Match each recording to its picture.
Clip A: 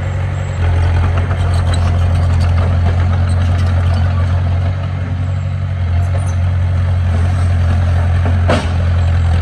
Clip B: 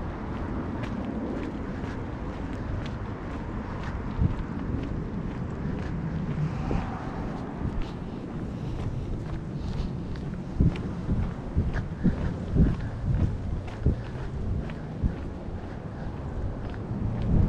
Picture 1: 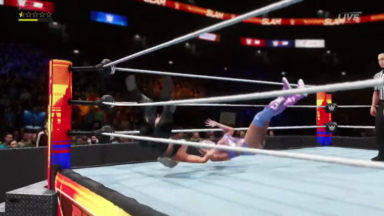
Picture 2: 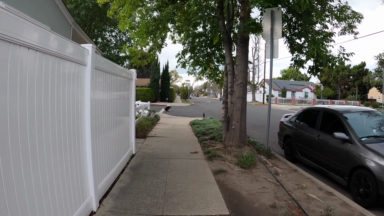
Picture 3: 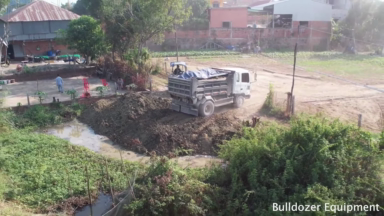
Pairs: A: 3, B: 2